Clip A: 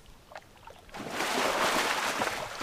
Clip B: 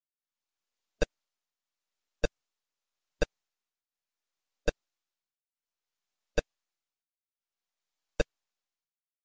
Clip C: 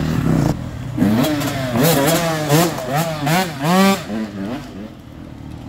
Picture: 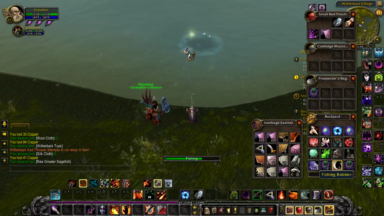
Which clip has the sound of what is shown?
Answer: A